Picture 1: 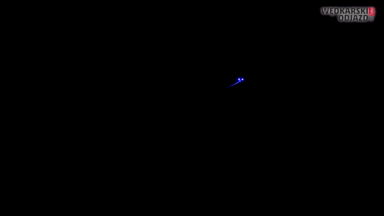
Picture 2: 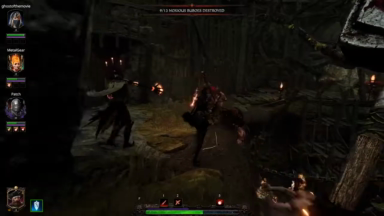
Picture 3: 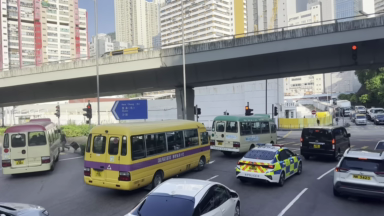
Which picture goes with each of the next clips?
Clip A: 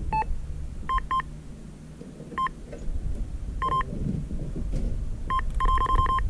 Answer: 1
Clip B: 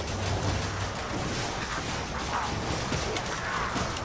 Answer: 2